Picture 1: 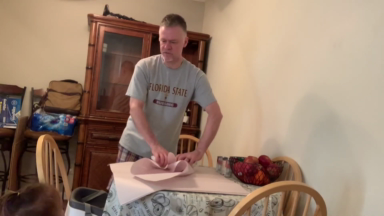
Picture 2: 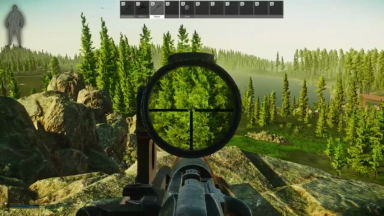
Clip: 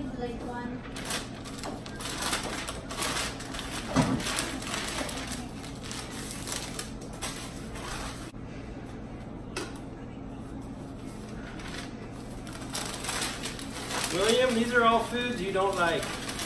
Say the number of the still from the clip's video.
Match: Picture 1